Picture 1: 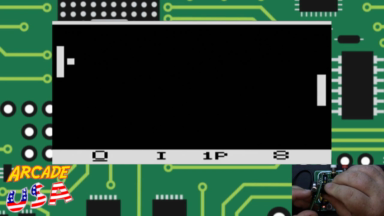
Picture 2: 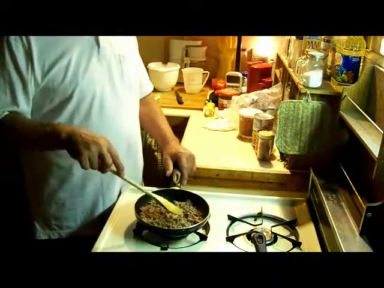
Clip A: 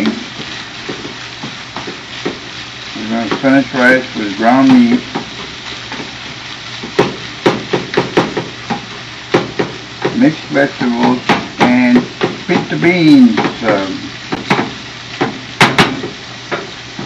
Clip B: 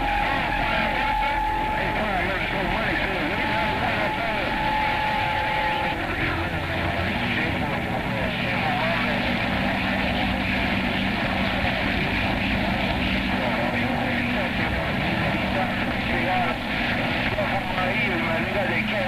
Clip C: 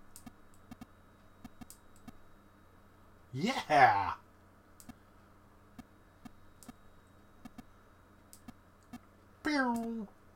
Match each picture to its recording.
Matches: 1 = C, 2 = A